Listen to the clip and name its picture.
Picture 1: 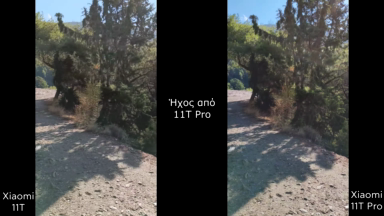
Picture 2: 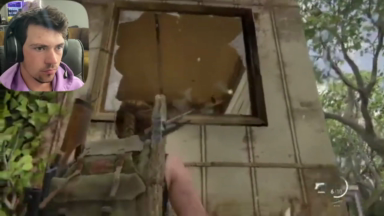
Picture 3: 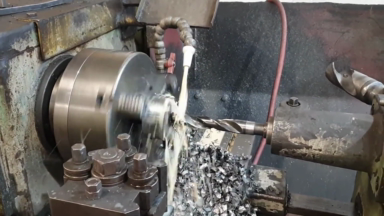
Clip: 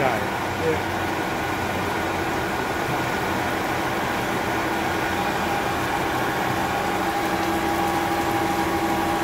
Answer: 3